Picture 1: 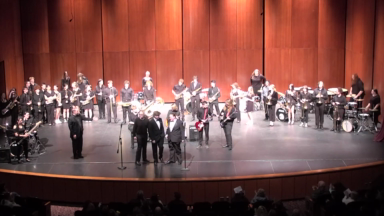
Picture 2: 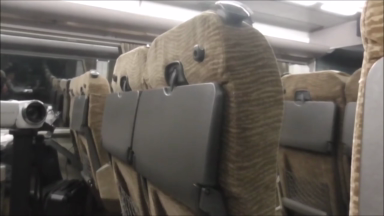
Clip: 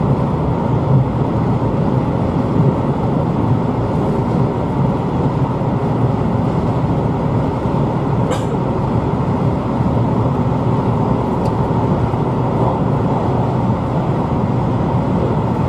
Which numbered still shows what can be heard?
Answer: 2